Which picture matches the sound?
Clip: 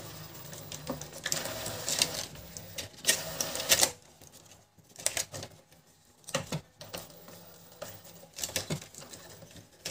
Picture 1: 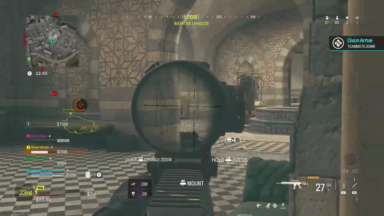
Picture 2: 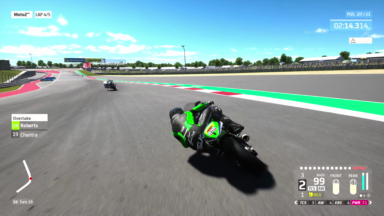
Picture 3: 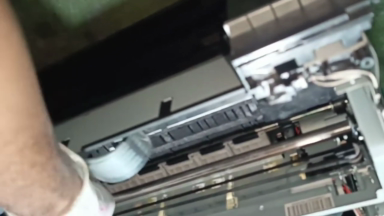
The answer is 3